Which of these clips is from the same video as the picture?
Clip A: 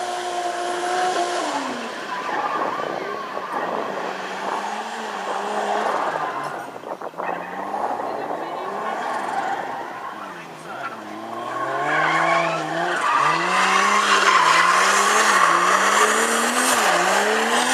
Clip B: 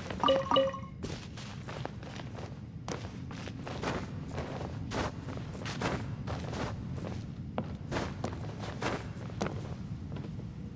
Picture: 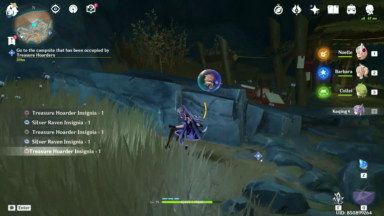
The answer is B